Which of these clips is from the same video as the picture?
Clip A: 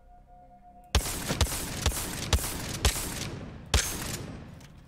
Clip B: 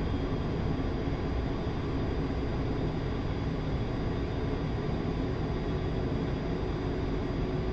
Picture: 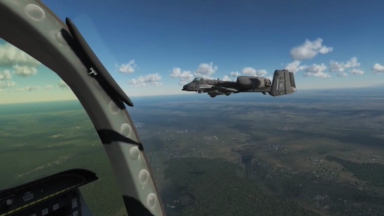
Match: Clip B